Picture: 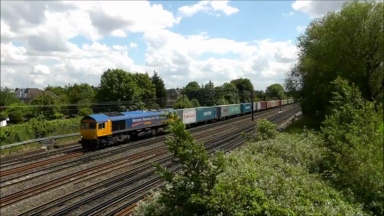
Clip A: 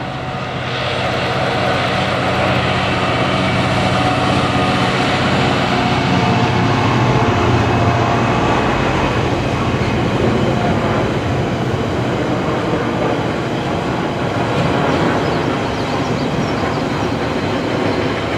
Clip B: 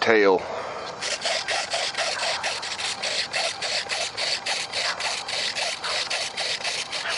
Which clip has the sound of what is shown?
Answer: A